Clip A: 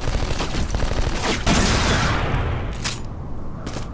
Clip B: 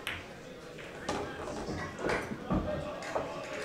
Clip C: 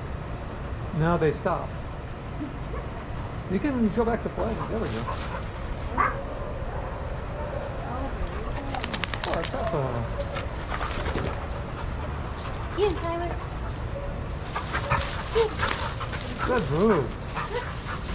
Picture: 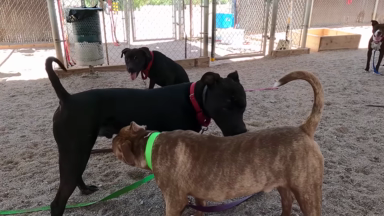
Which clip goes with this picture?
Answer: C